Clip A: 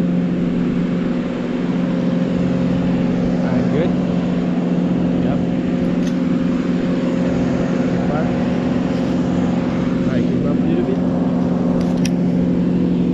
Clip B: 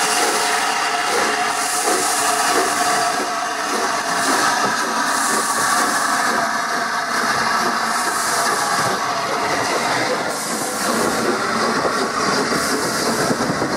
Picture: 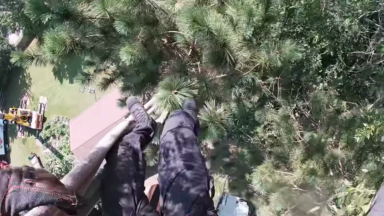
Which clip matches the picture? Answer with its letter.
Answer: A